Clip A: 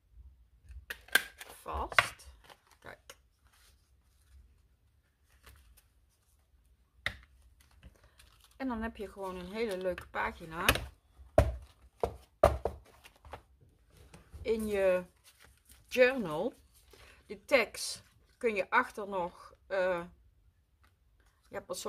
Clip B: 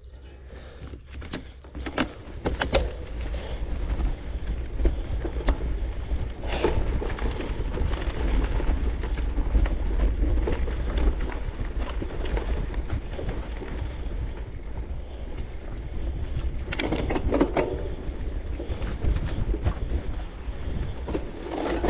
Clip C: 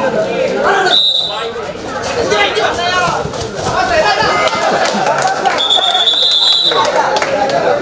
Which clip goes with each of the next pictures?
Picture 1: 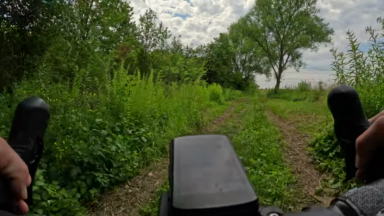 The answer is B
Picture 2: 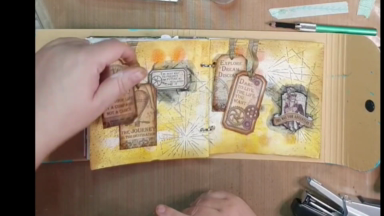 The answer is A